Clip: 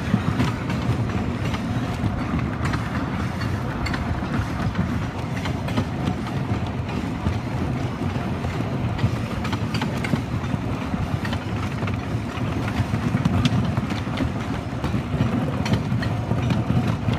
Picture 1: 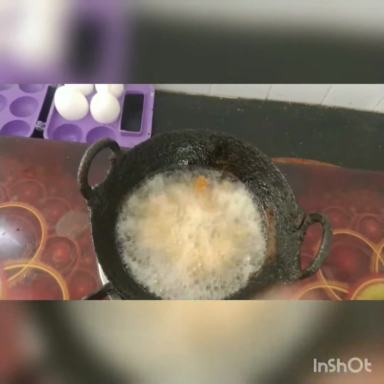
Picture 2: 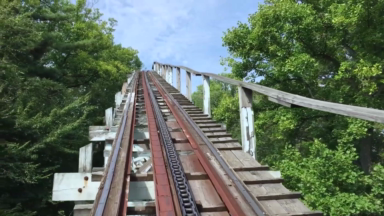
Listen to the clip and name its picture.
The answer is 2